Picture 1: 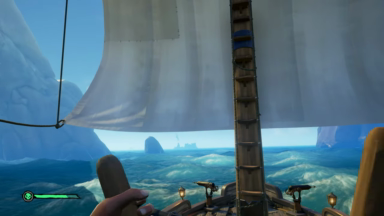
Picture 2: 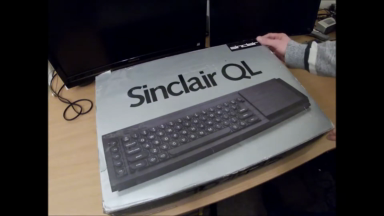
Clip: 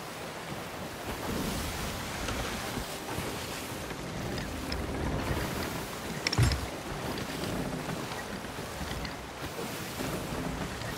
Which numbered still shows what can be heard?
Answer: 1